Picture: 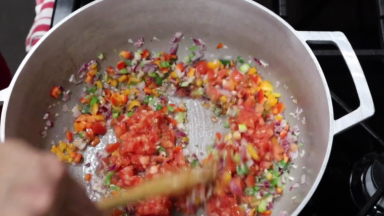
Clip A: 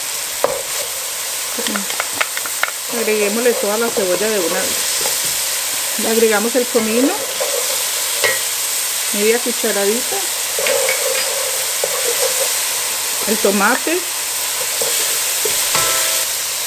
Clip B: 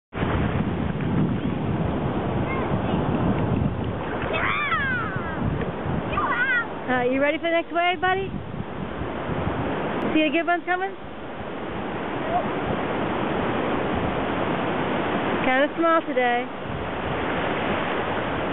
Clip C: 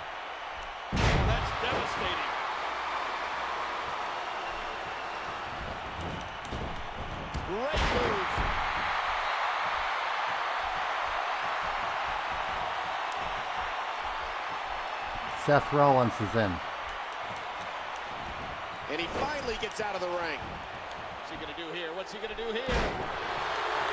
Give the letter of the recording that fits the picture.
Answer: A